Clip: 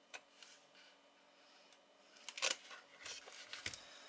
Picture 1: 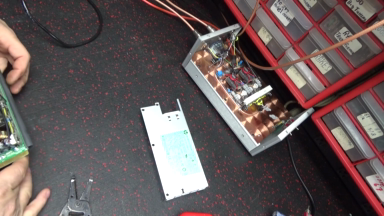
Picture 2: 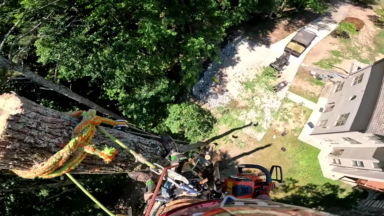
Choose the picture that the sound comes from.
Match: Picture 1